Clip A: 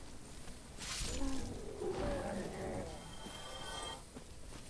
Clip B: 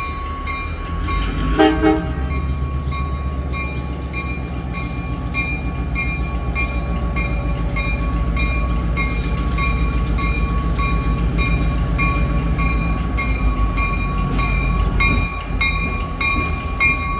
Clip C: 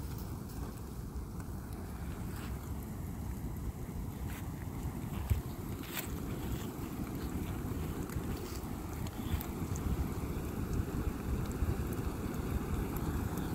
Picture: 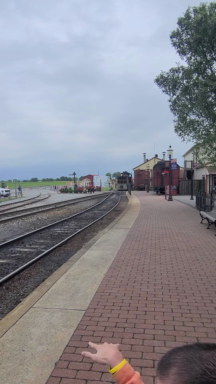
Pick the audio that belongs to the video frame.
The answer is B